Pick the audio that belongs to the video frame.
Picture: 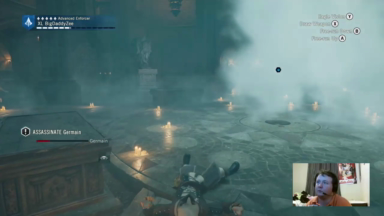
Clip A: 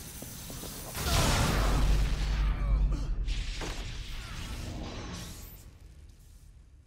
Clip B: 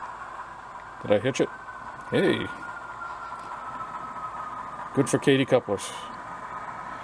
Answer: A